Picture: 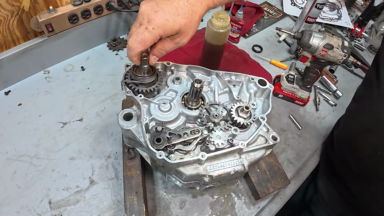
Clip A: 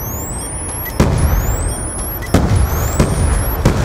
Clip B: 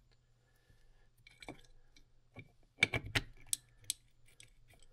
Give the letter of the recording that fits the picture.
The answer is B